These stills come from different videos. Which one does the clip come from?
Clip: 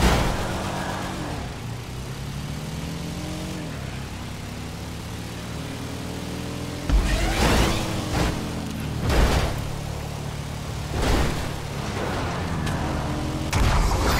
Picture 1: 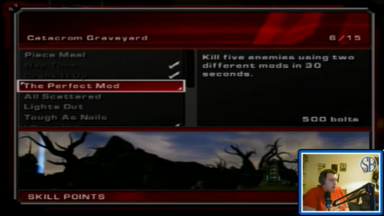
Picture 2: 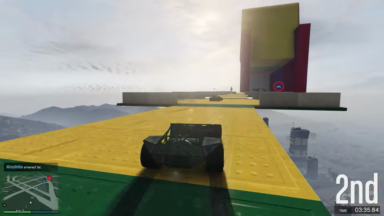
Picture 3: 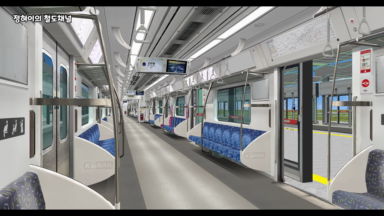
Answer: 2